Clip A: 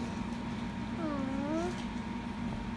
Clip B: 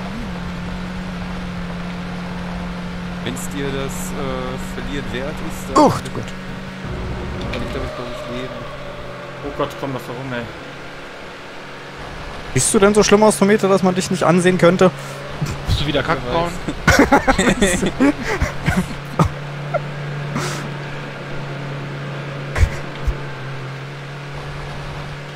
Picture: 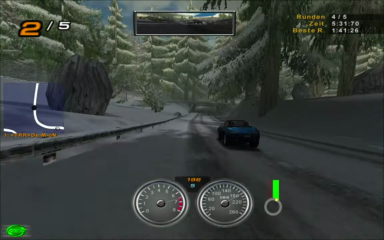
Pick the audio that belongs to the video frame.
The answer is B